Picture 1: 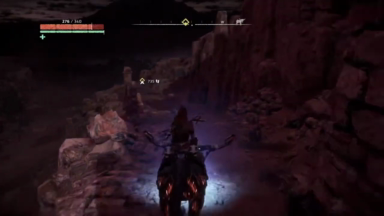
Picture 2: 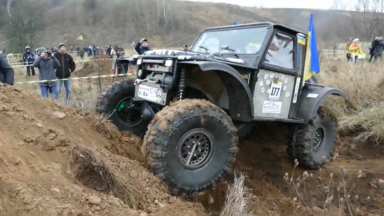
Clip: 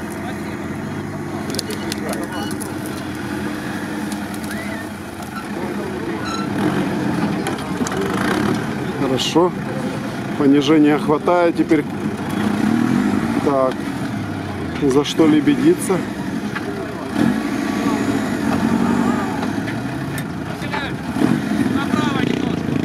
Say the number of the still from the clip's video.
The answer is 2